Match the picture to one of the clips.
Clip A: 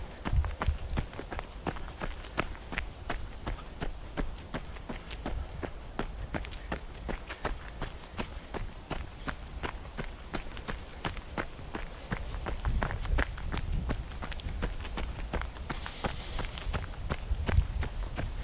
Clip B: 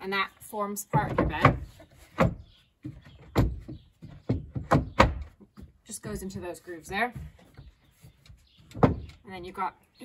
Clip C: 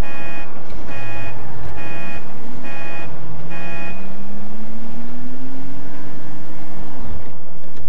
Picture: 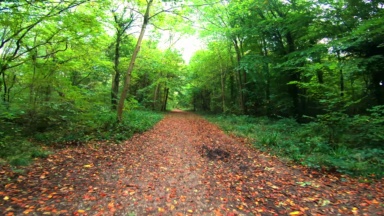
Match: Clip A